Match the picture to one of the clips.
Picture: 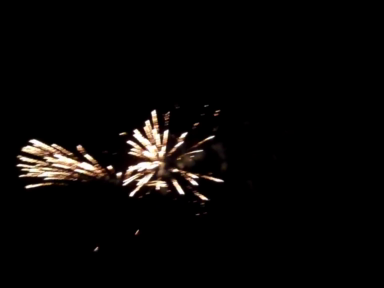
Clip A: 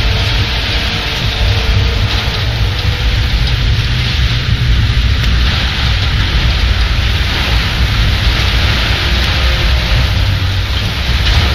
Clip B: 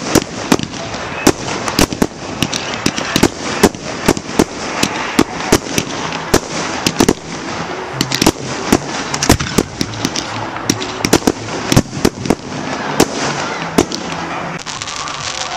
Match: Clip B